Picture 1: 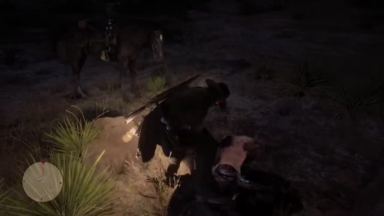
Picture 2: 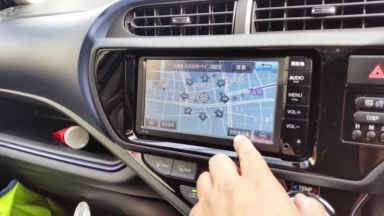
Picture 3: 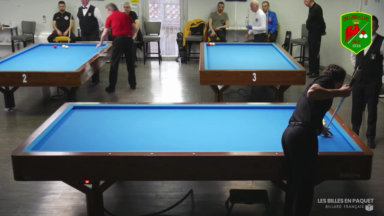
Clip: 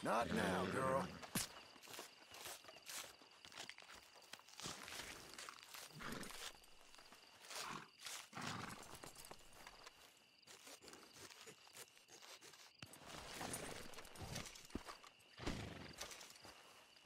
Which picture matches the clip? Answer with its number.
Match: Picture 1